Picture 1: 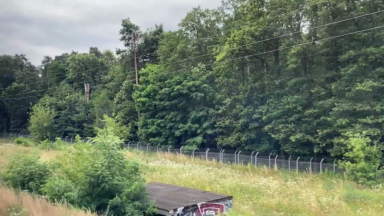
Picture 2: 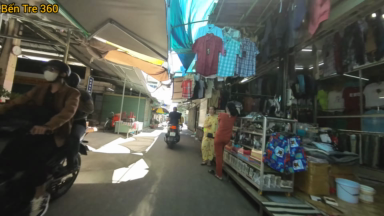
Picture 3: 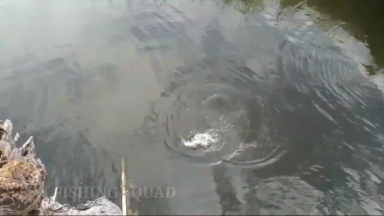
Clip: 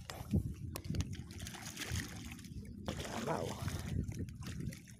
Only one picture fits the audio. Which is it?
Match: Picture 3